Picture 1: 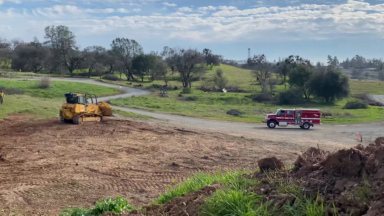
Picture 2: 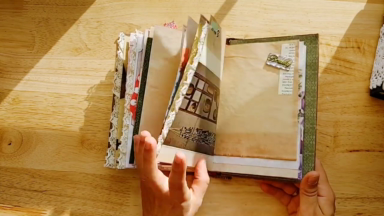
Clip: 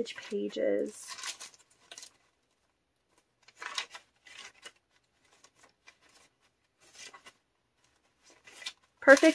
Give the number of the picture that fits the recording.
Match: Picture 2